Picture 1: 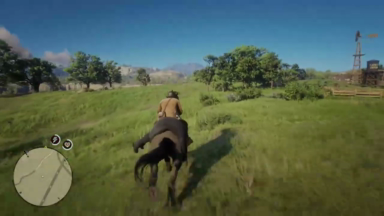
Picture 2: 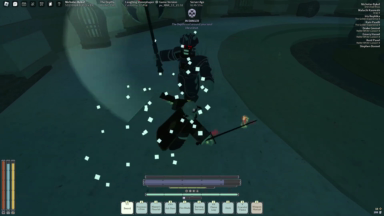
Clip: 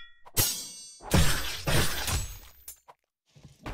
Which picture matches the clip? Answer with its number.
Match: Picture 2